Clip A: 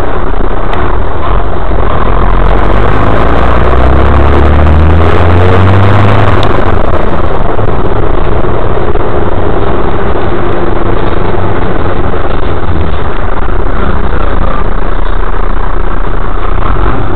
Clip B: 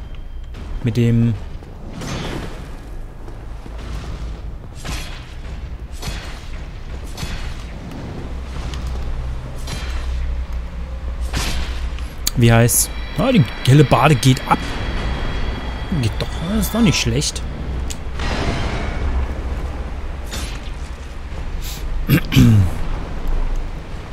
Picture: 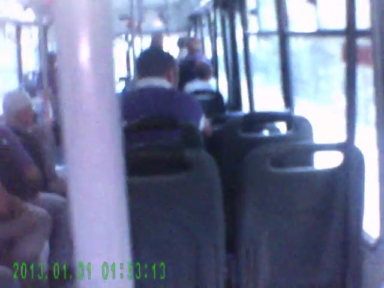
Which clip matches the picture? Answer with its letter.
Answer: A